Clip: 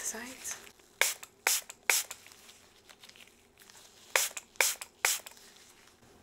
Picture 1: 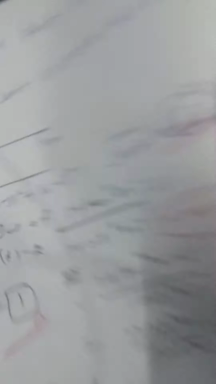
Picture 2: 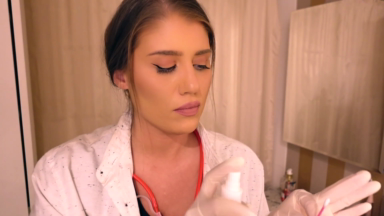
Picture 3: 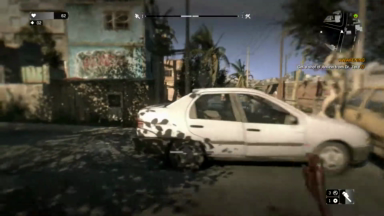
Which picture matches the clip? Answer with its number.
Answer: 2